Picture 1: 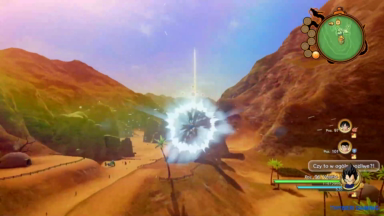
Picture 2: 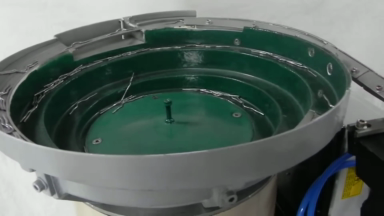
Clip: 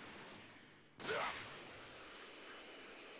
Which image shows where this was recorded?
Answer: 1